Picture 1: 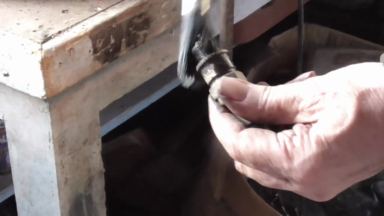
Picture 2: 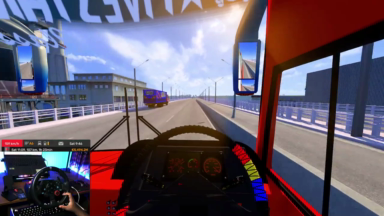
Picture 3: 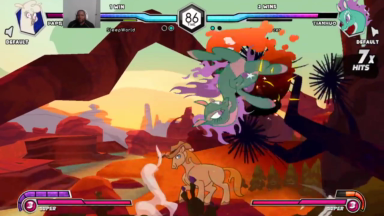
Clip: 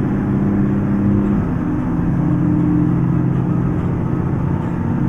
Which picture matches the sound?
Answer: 2